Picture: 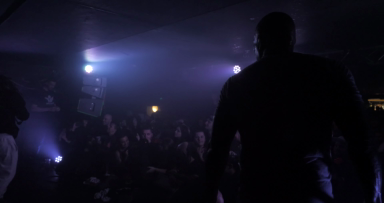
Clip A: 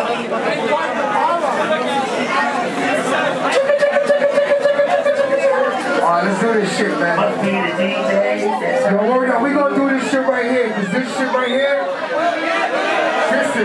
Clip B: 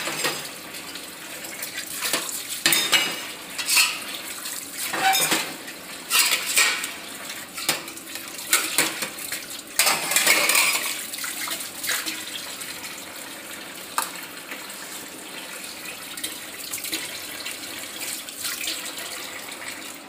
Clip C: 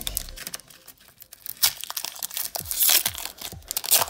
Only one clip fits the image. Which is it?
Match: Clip A